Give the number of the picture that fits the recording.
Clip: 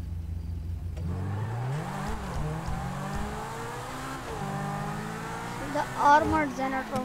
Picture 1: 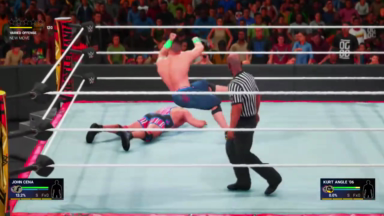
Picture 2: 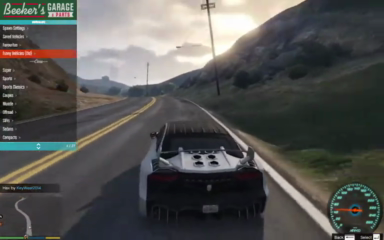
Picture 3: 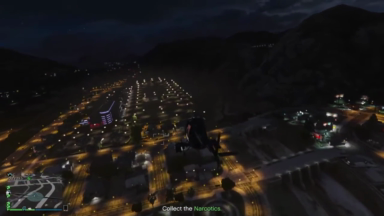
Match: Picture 2